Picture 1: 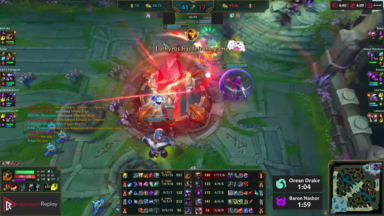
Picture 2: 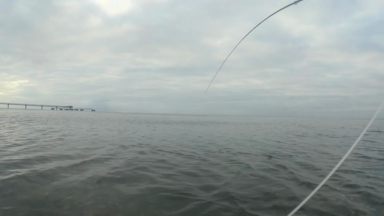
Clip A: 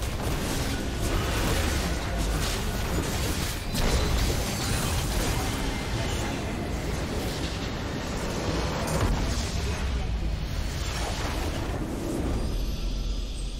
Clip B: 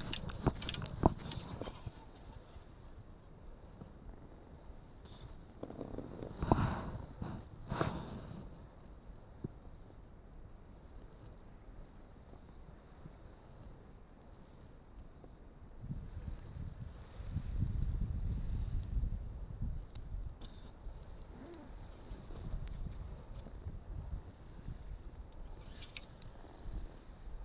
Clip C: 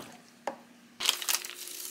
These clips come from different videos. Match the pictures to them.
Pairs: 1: A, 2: B